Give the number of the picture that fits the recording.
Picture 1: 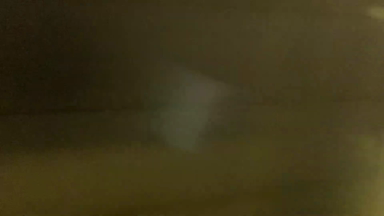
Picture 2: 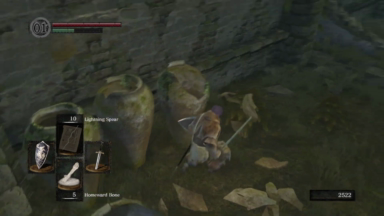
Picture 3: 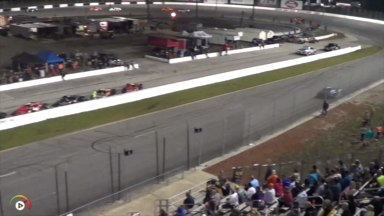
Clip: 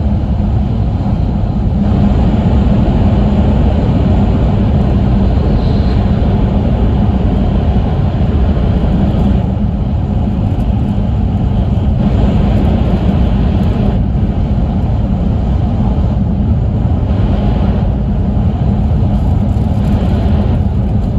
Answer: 1